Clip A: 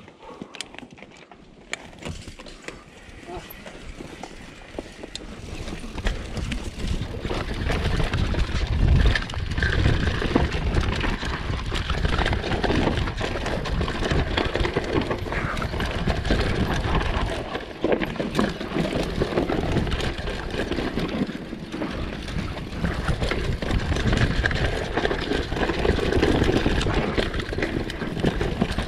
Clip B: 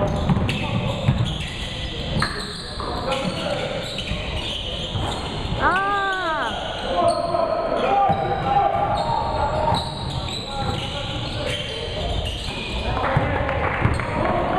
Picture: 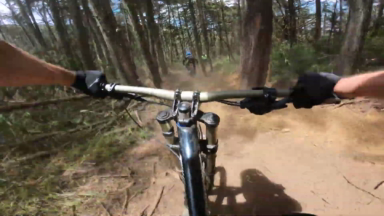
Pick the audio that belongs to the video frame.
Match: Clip A